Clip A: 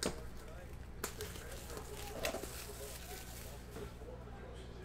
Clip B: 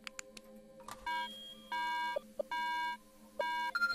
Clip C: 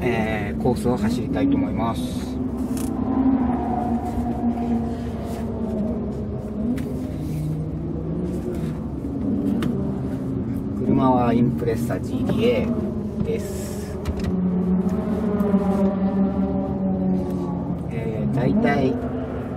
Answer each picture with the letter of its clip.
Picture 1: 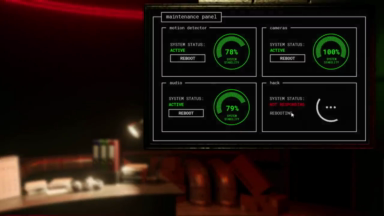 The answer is B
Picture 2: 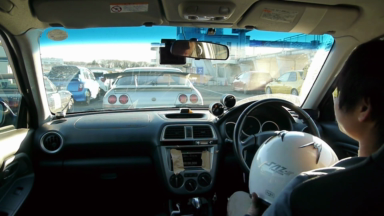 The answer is C